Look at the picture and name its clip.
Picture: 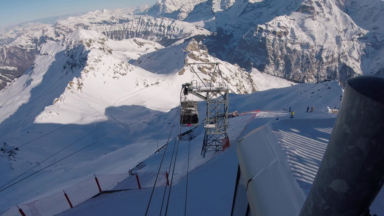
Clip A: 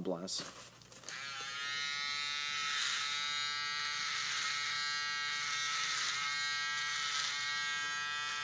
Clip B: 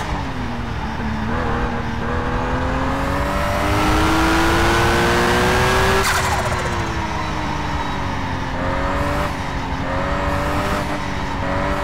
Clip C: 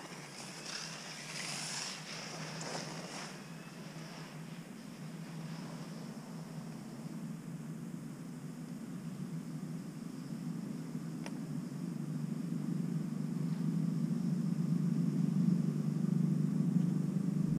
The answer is C